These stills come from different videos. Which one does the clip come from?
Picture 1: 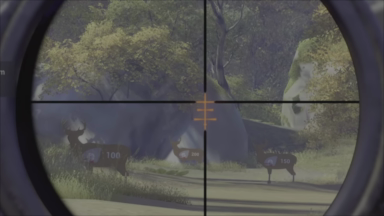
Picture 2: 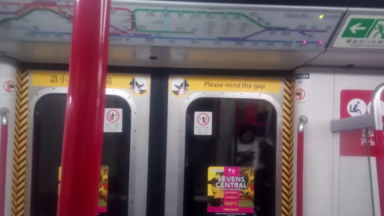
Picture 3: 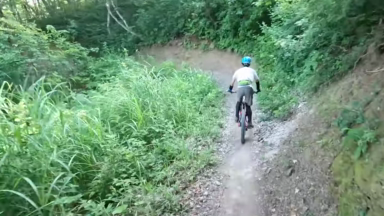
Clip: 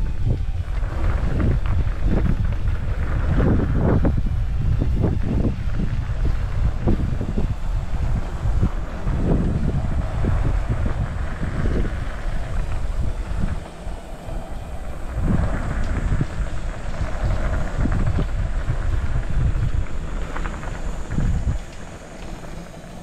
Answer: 3